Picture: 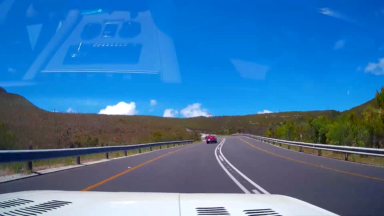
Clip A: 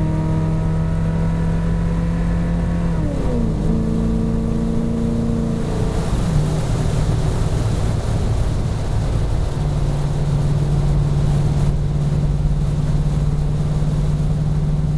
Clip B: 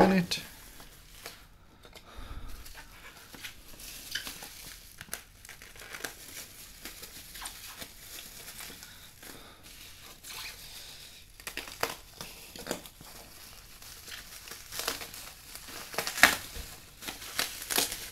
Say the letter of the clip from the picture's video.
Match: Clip A